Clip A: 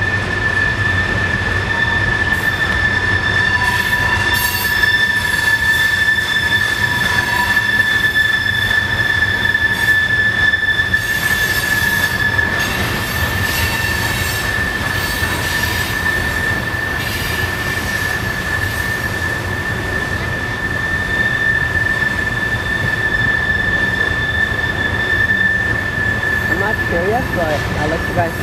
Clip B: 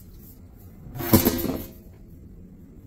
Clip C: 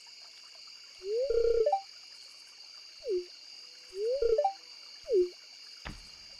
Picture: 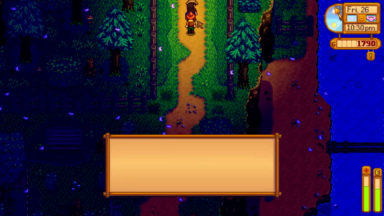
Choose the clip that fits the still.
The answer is C